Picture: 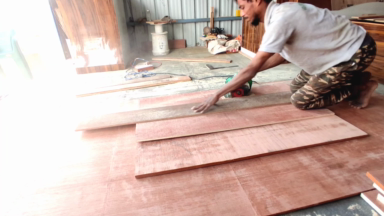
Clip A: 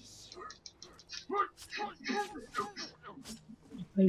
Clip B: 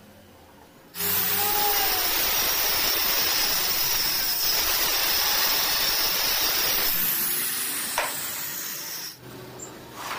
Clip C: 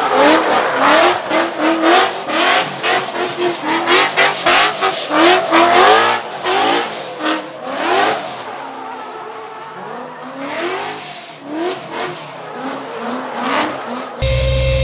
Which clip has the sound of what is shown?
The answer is B